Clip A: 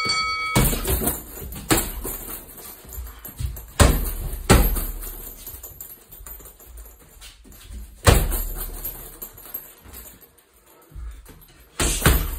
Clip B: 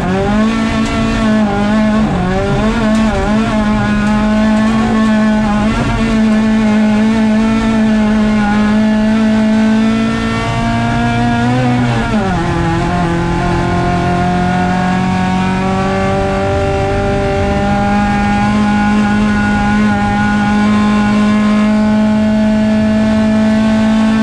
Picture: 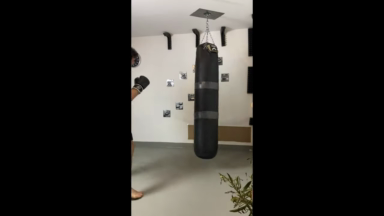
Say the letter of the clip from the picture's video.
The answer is A